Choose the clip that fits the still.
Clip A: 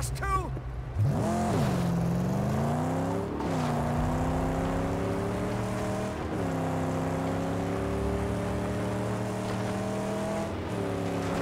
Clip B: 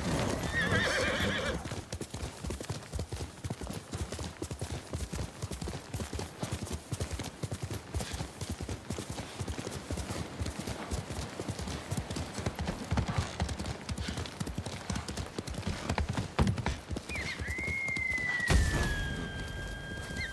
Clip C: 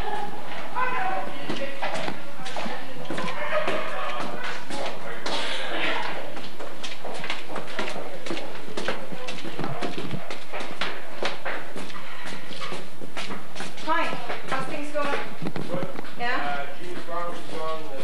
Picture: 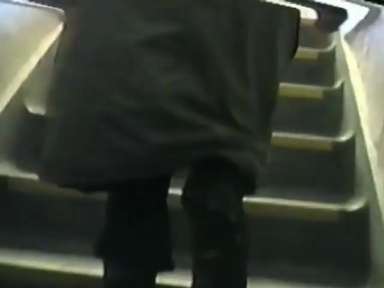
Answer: C